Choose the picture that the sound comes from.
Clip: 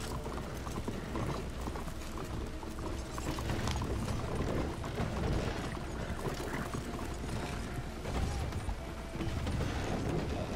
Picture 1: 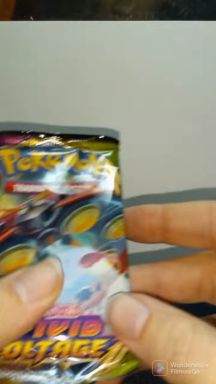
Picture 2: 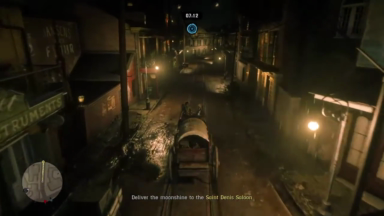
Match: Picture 2